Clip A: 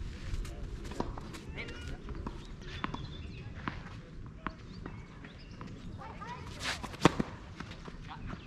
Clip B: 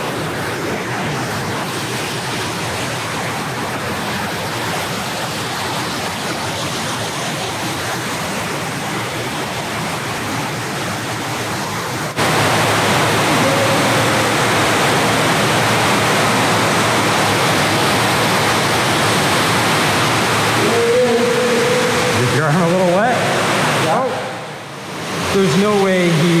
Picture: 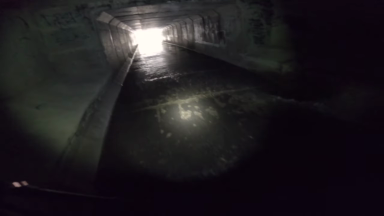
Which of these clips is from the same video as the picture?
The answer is B